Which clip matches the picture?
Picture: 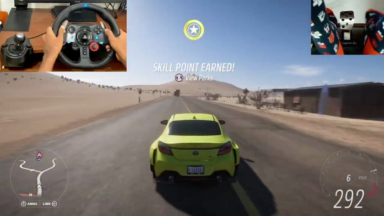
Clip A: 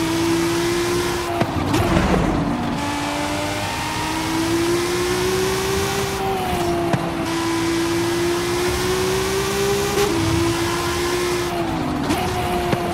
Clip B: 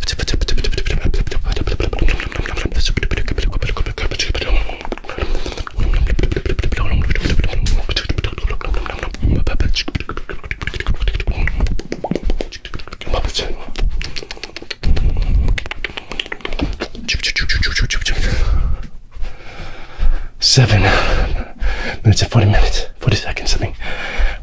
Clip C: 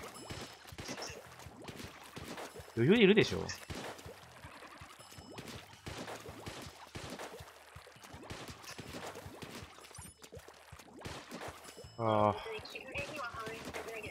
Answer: A